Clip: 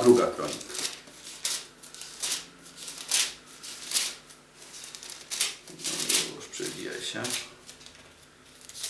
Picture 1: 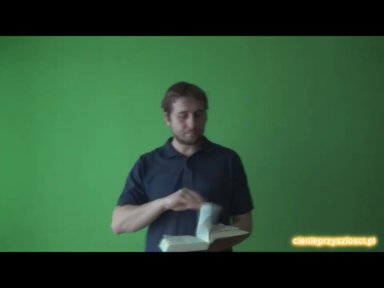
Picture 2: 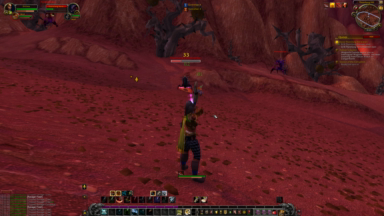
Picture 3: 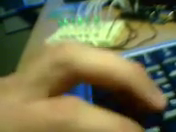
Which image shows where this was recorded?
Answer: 1